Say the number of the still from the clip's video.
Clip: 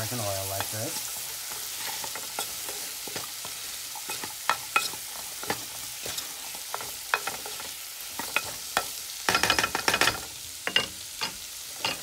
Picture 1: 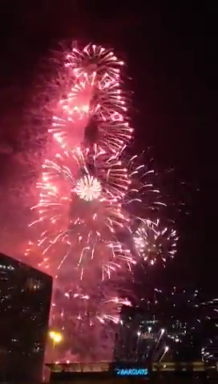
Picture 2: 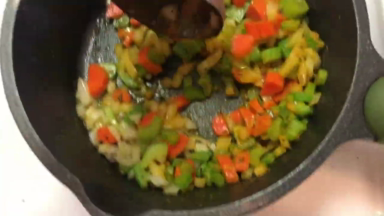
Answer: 2